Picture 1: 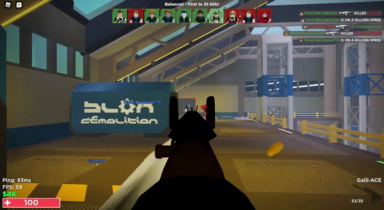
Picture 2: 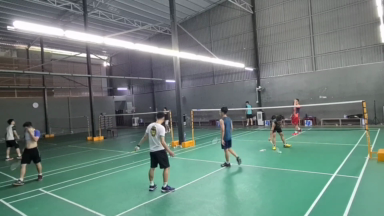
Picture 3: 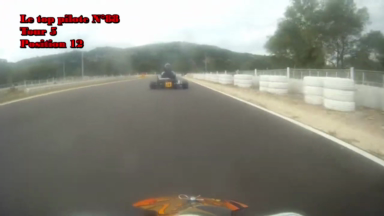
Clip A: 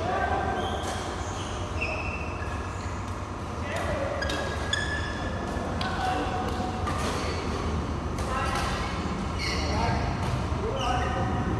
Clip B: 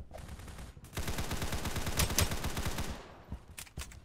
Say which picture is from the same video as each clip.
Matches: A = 2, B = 1